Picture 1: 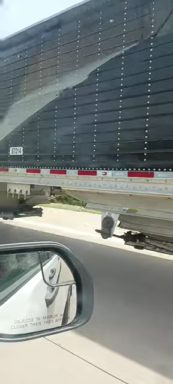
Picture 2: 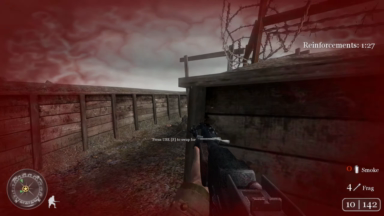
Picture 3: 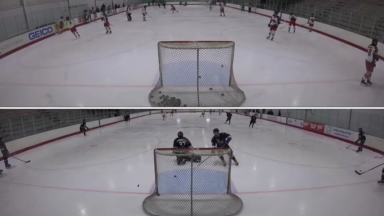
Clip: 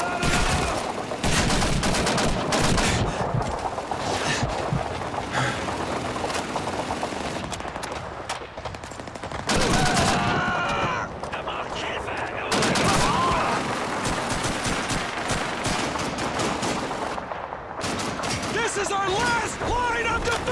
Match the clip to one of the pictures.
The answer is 2